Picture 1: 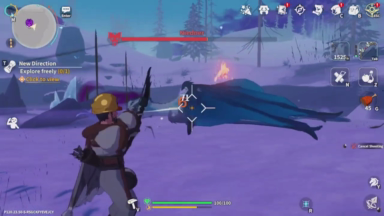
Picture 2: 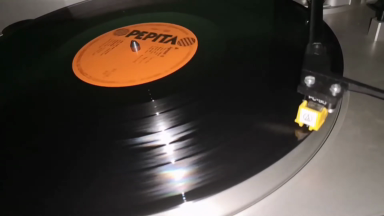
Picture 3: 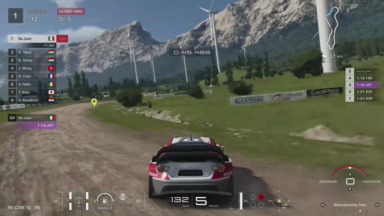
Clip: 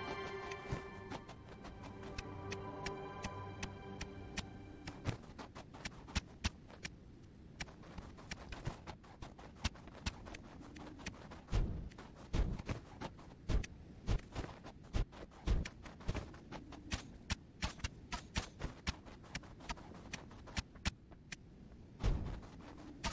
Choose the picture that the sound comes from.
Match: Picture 1